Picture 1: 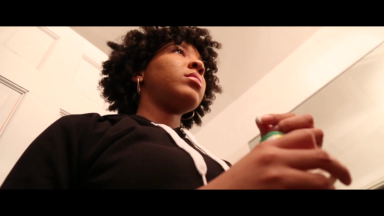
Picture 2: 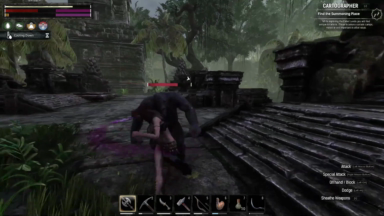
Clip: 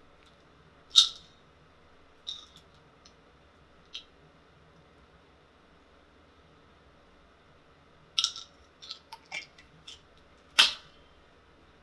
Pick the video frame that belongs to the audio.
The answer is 1